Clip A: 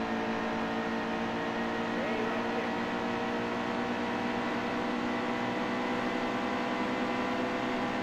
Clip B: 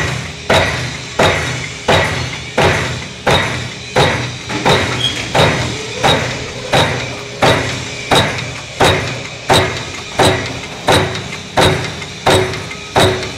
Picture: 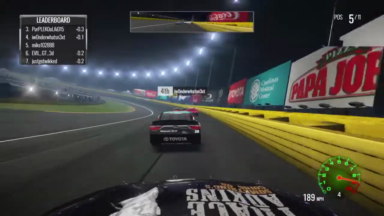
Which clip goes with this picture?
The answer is A